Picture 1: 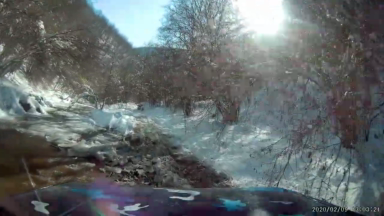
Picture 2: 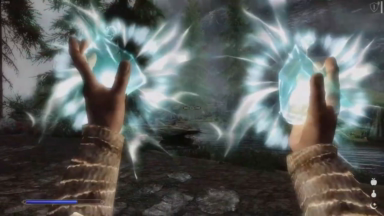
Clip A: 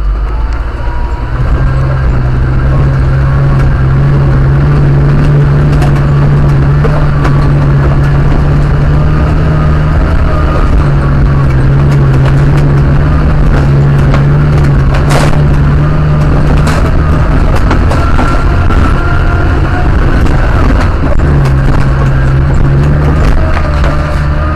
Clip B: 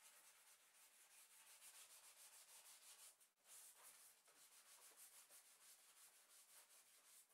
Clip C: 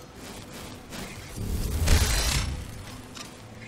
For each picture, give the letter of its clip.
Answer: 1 A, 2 C